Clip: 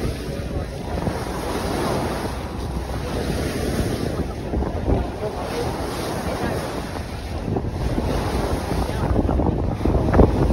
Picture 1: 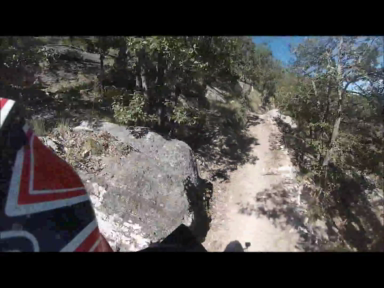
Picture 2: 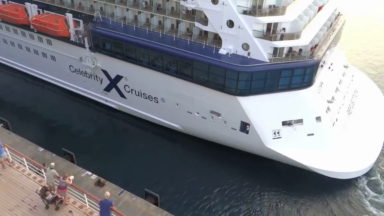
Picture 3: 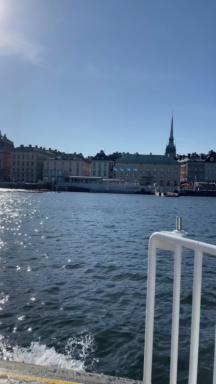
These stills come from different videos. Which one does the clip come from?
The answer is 3